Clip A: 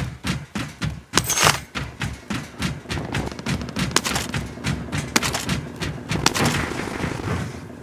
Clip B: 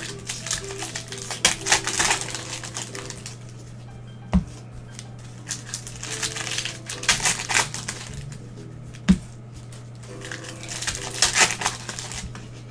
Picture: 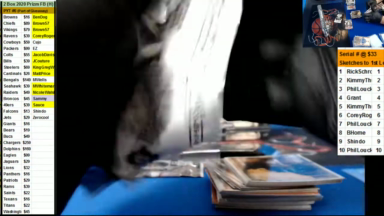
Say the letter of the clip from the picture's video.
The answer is B